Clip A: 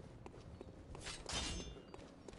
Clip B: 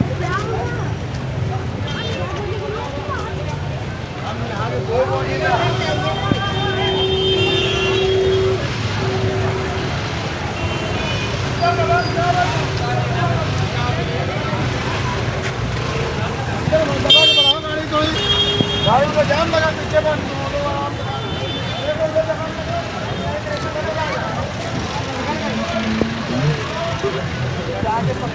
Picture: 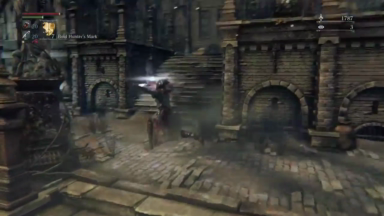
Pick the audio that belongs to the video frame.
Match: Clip A